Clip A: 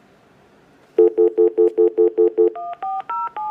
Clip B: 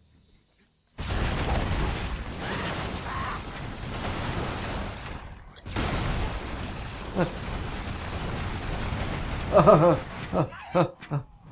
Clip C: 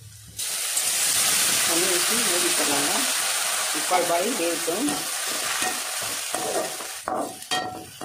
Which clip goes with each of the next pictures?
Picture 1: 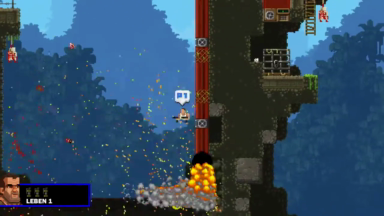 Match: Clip B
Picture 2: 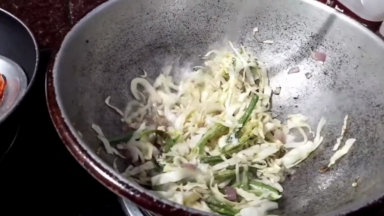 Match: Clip C